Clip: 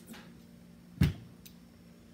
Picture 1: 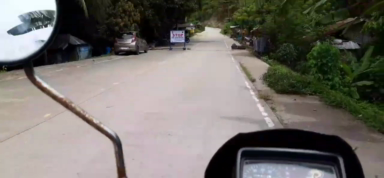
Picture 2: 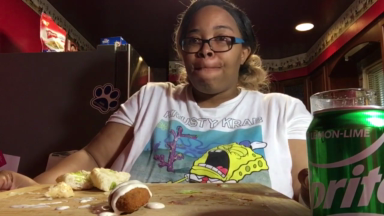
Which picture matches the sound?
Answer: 2